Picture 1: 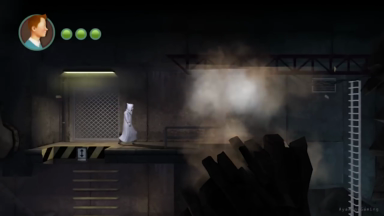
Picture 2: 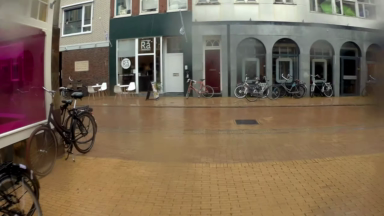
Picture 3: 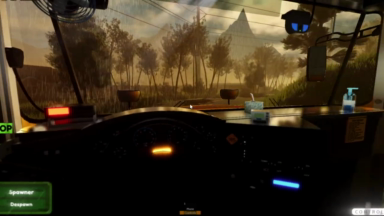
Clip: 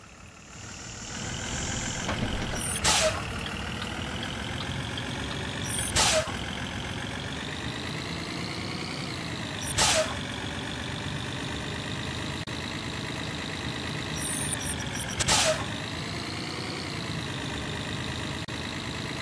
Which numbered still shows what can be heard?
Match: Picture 3